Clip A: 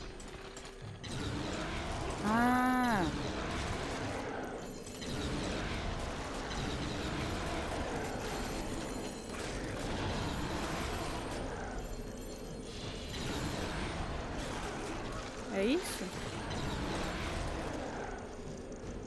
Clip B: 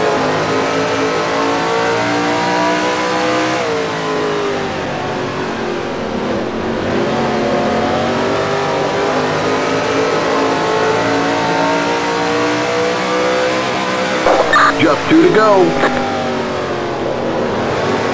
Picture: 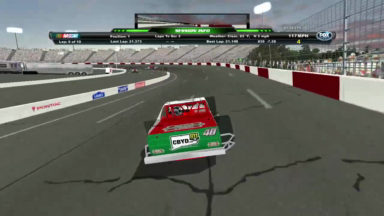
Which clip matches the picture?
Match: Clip B